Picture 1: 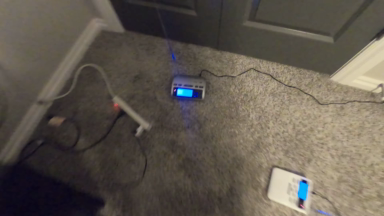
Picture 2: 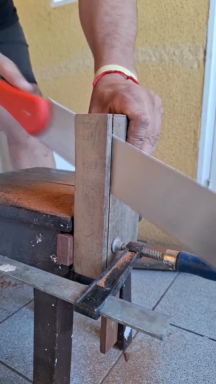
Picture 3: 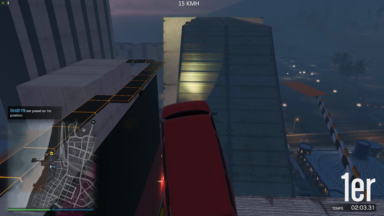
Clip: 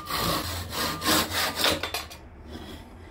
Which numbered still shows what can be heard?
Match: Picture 2